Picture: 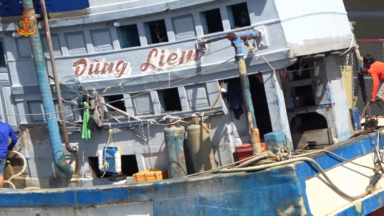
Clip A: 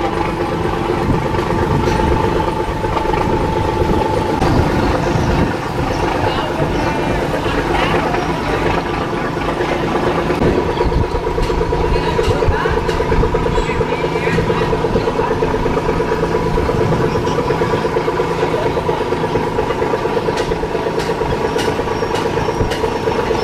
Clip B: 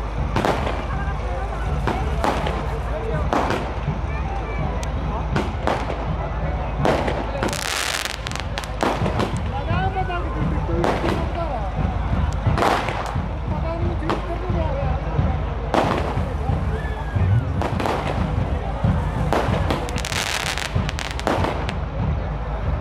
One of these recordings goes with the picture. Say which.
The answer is A